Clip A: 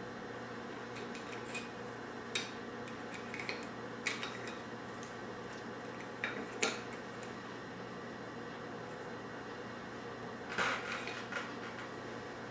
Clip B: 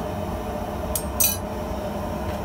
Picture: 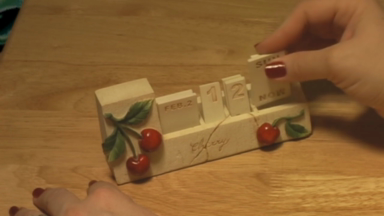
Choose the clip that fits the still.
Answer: A